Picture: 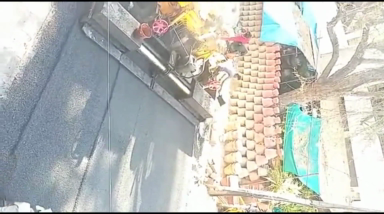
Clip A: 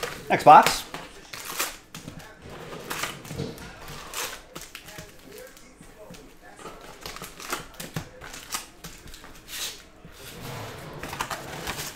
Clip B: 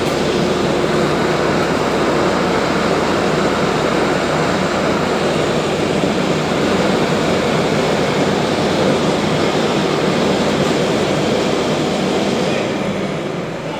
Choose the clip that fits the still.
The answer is B